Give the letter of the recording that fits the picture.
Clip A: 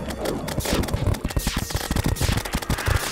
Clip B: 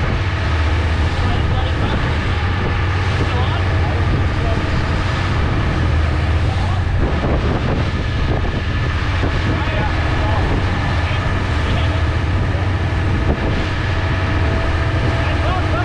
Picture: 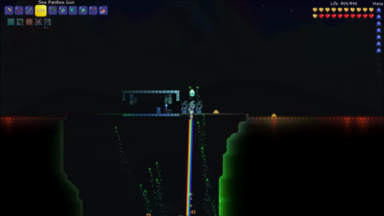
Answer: A